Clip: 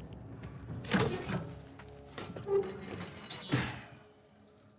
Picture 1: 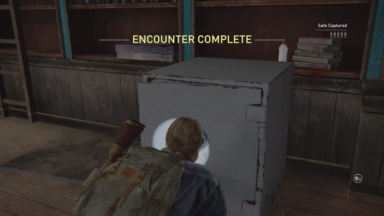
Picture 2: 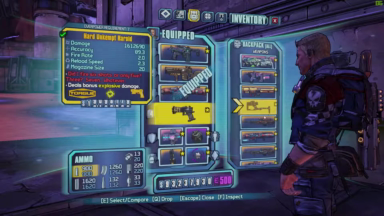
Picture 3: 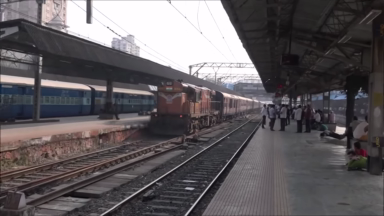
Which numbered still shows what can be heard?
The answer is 1